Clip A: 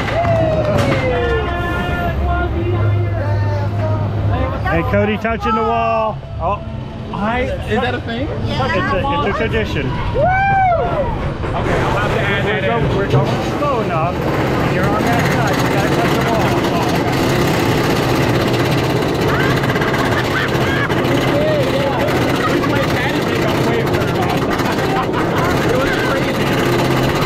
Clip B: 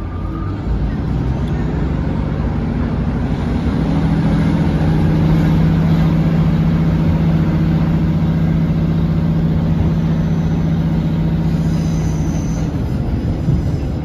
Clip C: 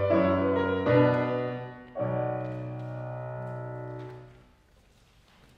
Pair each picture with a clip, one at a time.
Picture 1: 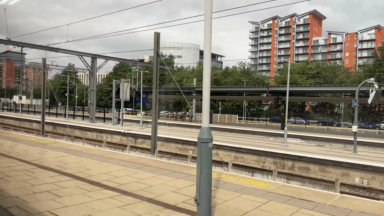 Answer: B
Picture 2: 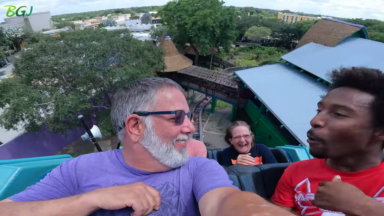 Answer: A